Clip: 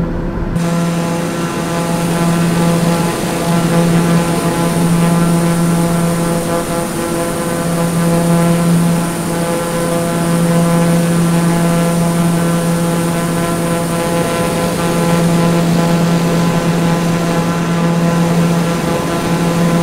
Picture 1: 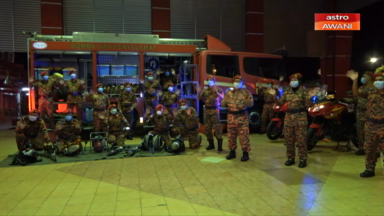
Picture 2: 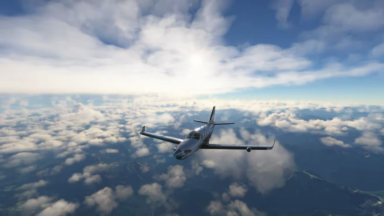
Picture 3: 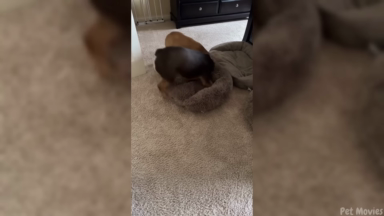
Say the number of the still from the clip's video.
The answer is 2